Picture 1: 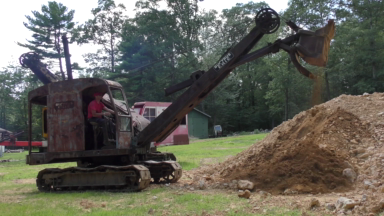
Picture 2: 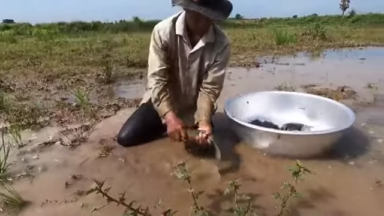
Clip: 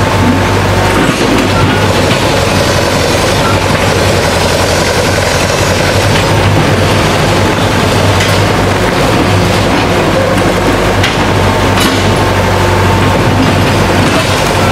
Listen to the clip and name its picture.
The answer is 1